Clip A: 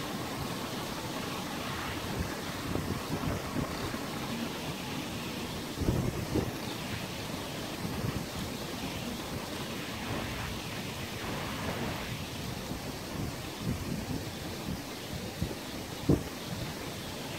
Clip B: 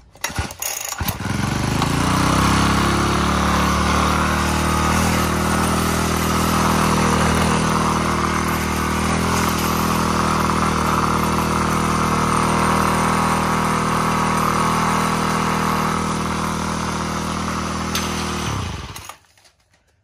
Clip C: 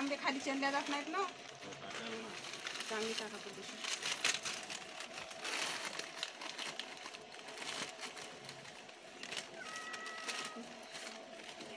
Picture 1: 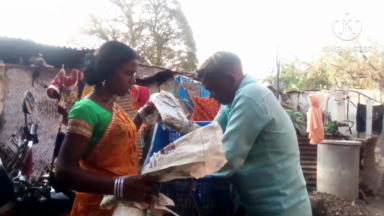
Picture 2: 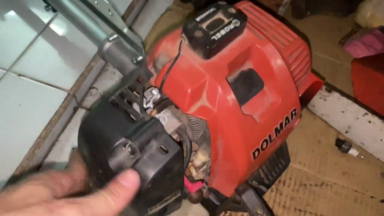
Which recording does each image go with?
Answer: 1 C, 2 B